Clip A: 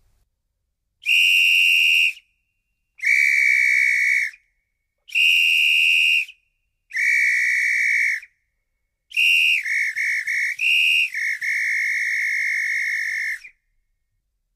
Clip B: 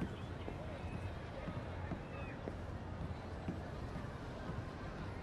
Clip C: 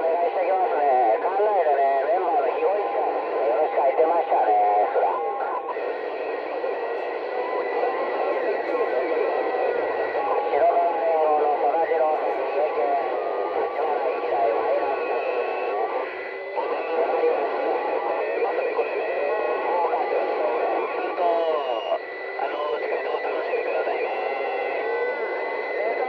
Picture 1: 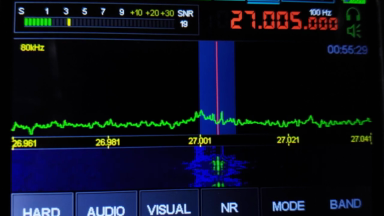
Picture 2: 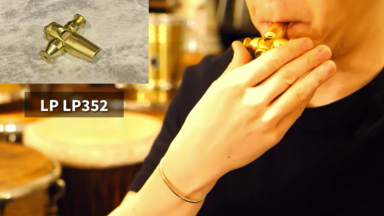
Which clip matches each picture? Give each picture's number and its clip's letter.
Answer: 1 C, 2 A